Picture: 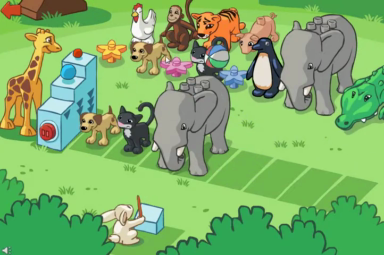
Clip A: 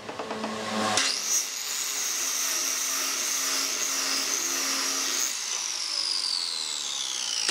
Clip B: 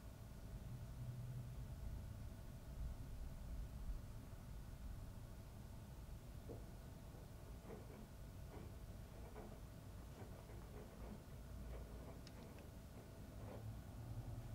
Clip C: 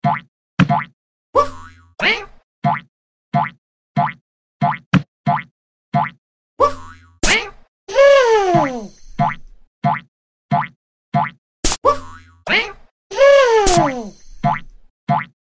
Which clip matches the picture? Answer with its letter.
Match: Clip C